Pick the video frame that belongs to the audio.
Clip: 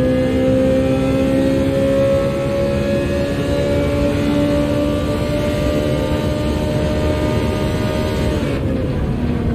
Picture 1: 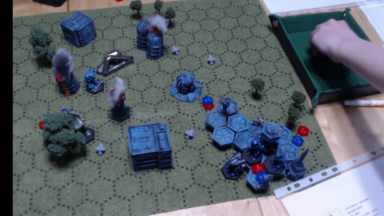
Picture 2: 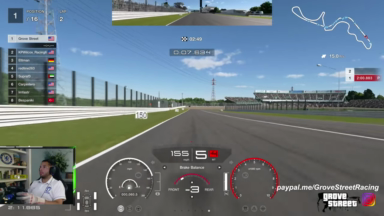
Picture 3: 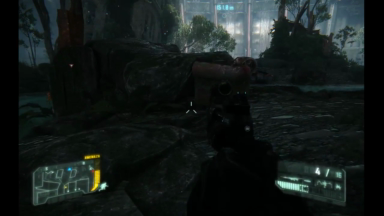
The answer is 2